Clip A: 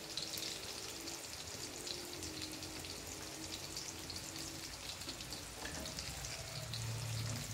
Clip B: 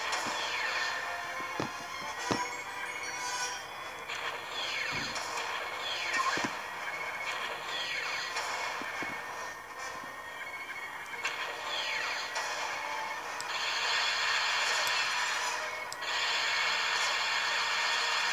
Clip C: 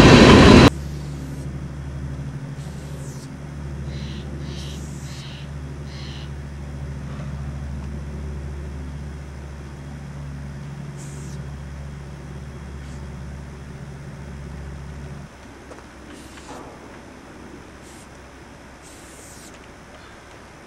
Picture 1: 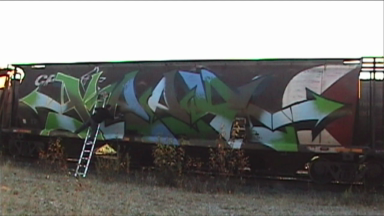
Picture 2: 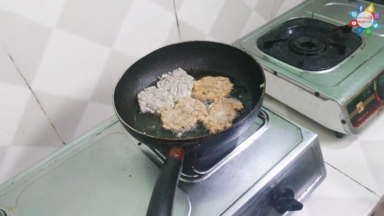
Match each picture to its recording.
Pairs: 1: C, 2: A